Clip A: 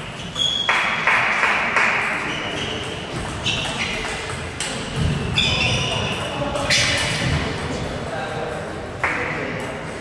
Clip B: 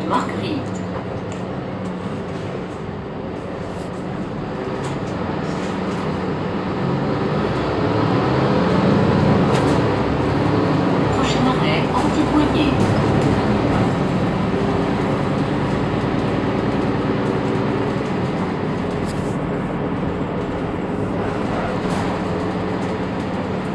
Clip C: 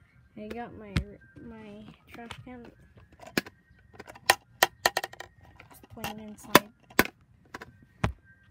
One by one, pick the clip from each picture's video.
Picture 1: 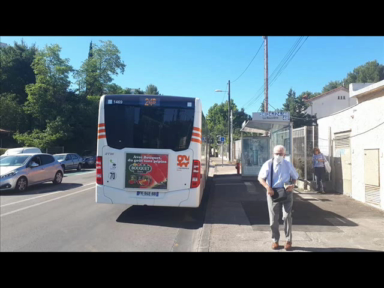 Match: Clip B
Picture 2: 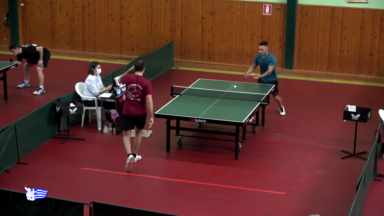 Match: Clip A